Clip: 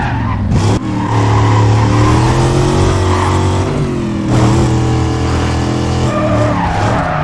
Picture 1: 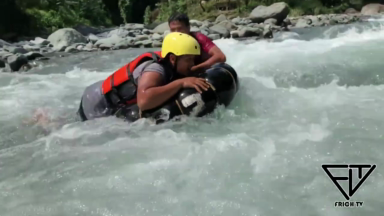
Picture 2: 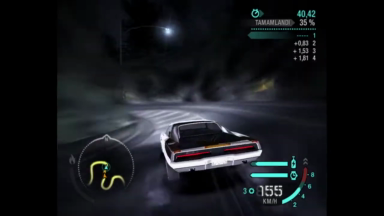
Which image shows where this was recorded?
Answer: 2